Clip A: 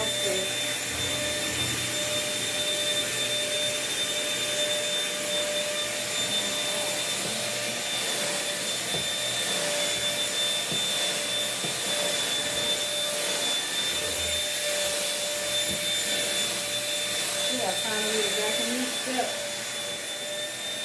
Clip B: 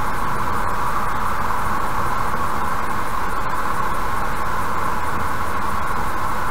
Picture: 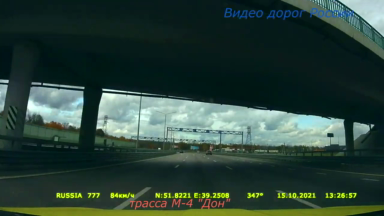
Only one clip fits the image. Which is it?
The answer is B